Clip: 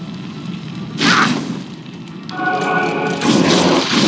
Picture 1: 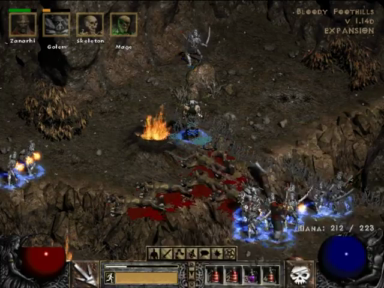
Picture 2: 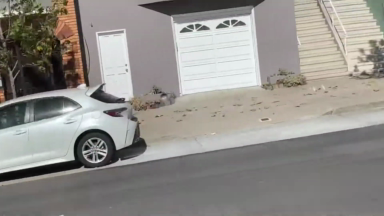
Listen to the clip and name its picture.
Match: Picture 1